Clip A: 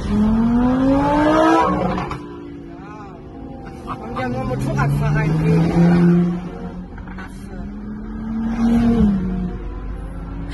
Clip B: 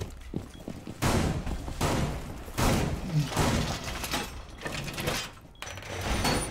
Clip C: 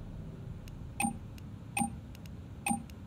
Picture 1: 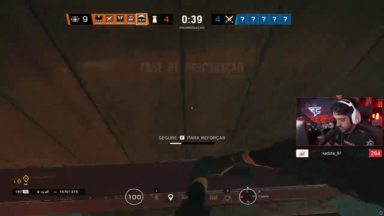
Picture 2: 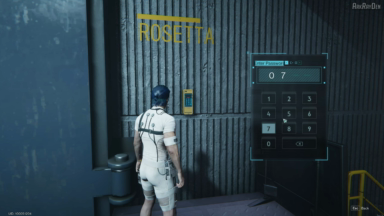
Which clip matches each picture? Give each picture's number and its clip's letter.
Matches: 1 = B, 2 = C